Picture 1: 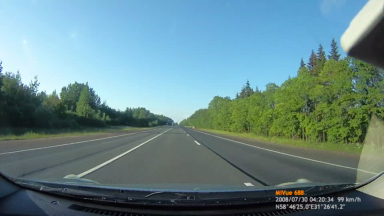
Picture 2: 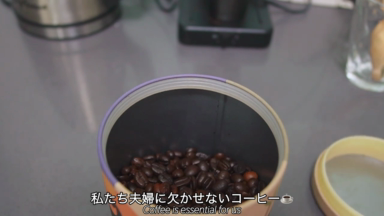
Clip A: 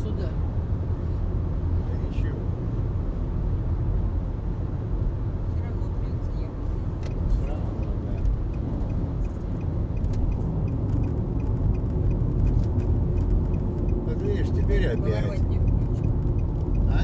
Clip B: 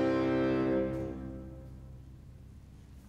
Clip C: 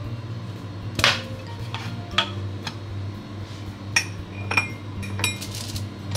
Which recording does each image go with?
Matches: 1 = A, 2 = C